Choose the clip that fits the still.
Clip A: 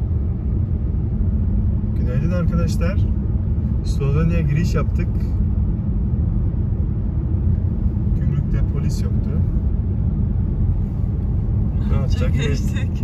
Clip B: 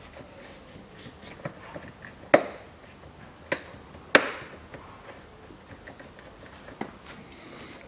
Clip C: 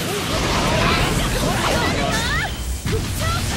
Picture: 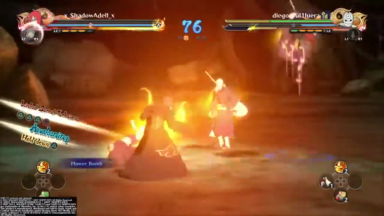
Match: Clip C